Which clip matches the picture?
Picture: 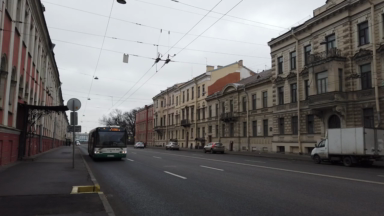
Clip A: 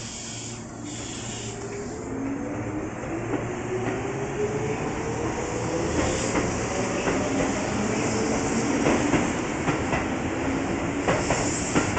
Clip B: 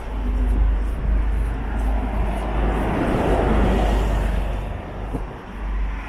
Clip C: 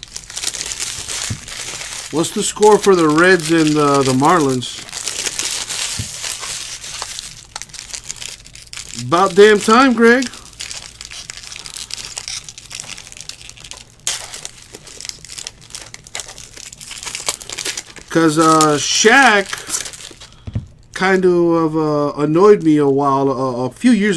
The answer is B